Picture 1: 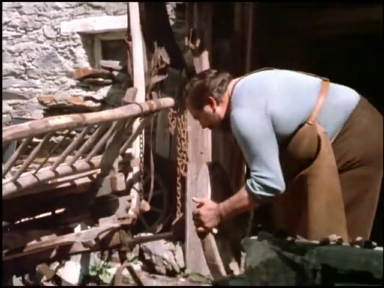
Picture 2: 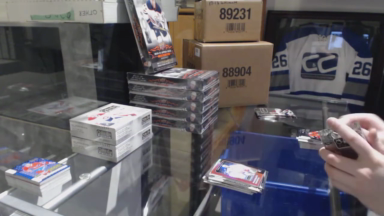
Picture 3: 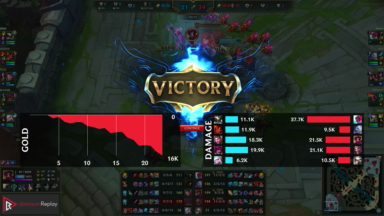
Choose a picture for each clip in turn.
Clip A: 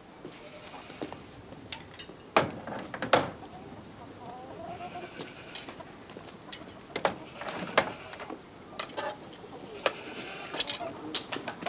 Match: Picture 1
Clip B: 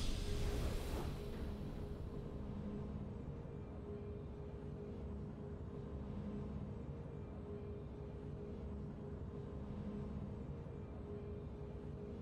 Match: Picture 3